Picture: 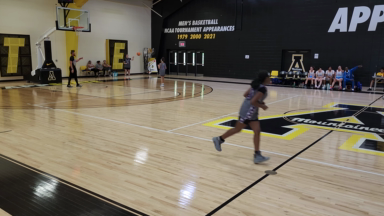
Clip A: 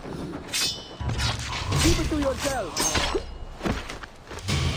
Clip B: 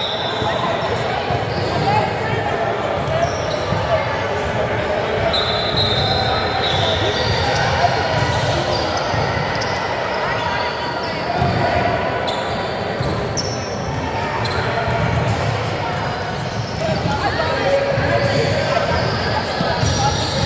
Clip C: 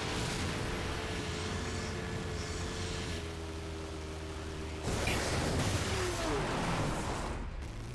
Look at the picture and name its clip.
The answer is B